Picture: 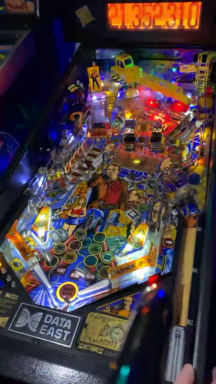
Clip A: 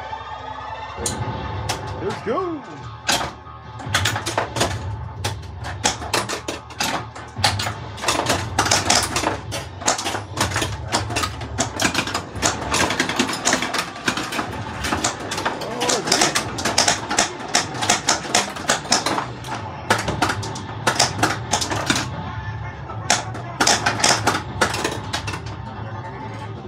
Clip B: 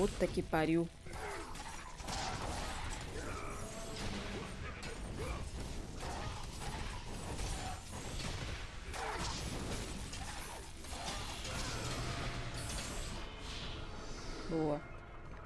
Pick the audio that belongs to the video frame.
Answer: A